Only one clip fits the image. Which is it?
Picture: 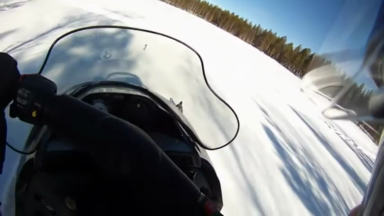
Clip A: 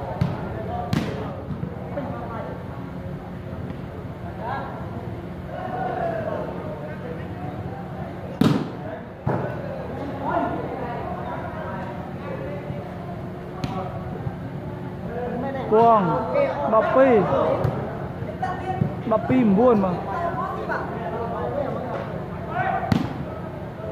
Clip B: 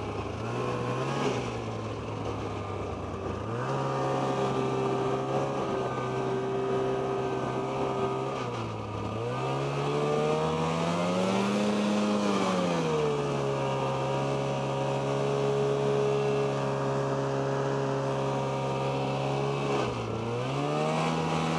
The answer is B